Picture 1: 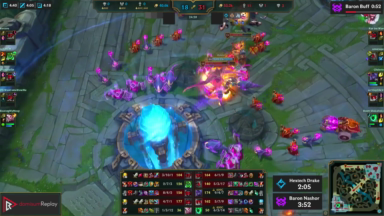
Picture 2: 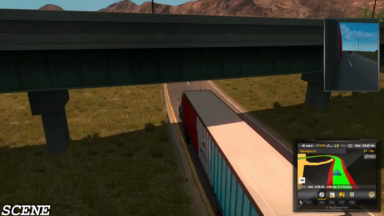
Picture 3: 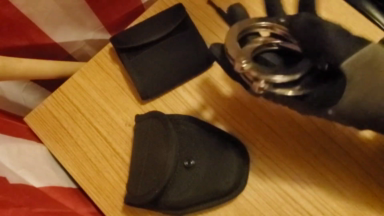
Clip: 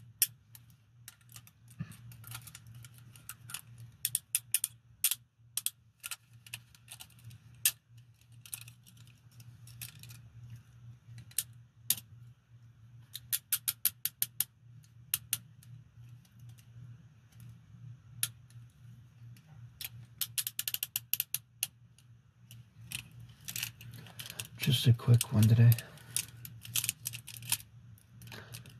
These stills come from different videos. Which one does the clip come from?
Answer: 3